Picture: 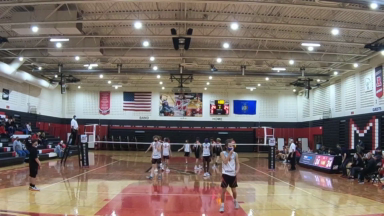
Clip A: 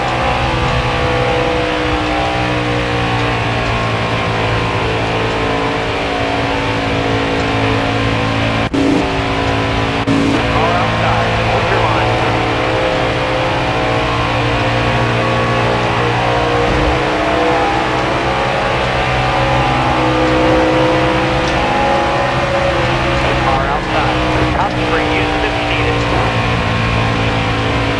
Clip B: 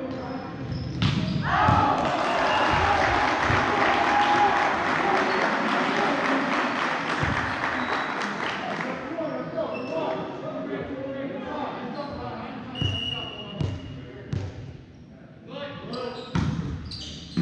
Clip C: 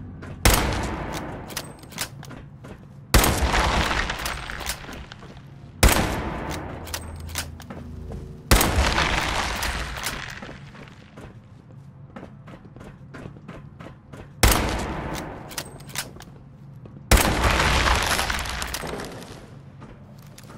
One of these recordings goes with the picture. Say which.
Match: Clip B